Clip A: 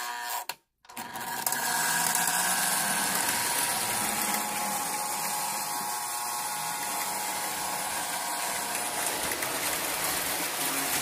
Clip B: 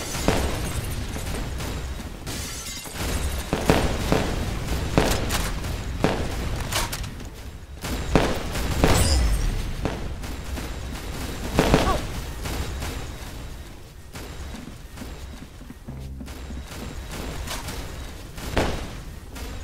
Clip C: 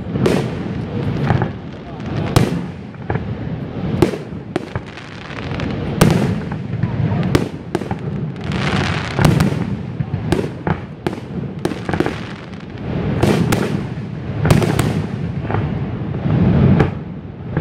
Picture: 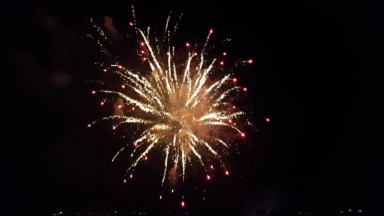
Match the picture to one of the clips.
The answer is C